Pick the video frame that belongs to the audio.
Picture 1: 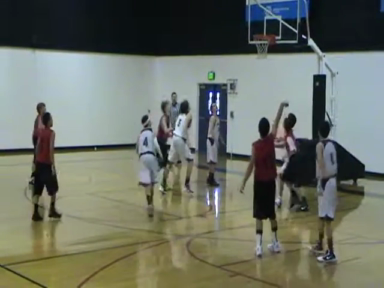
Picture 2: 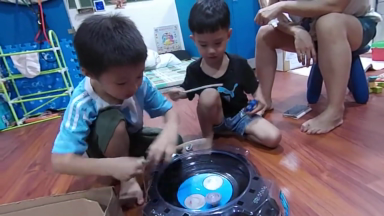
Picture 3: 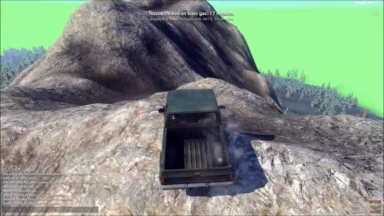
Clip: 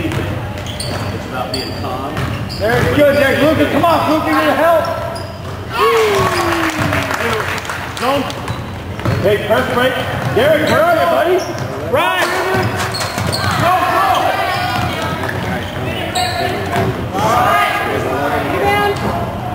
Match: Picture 1